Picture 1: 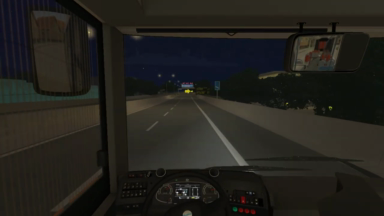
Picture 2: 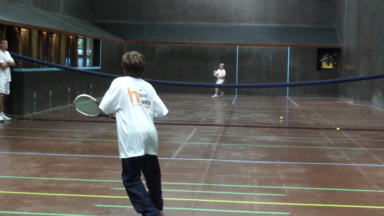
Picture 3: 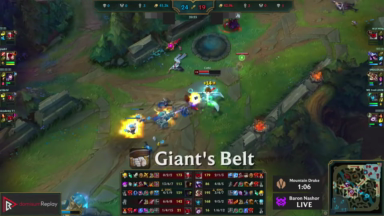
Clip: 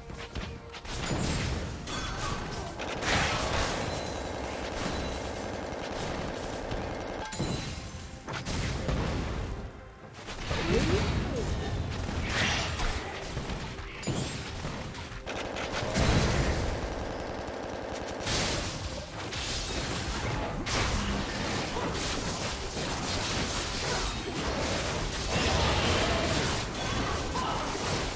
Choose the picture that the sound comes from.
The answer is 3